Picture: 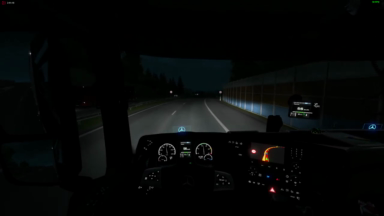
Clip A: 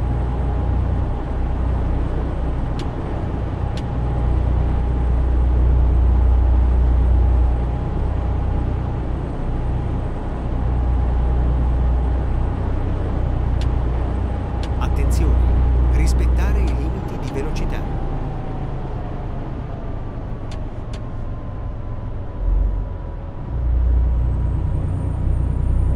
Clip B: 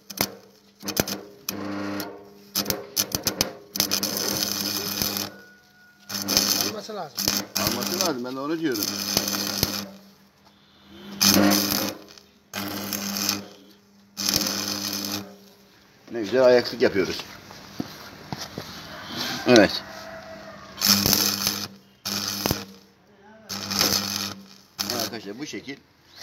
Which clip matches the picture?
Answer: A